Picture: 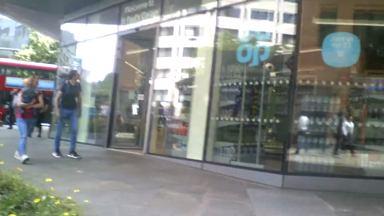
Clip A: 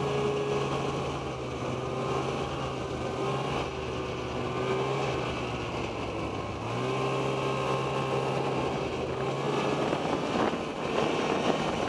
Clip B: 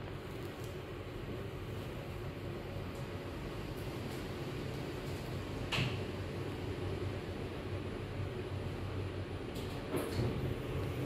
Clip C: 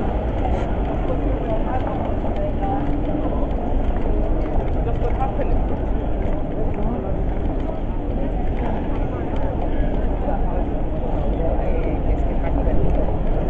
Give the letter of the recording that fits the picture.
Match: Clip C